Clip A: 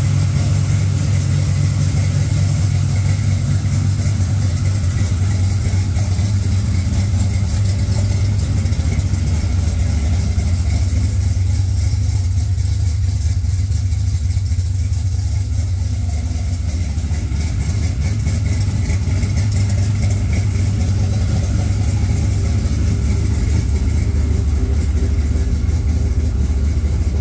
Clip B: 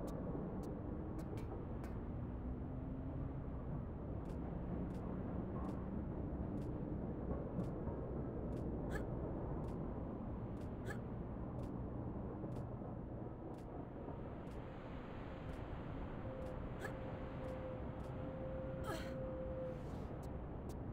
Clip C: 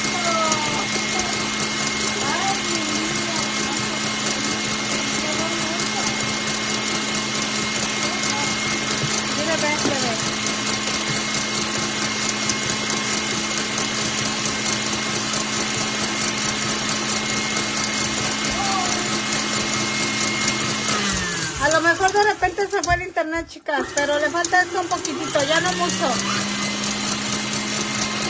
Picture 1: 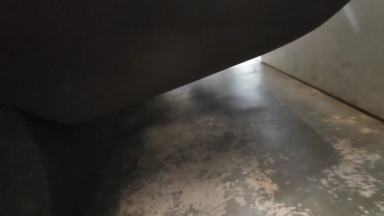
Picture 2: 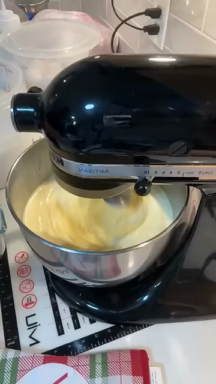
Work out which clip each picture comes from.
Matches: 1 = A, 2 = C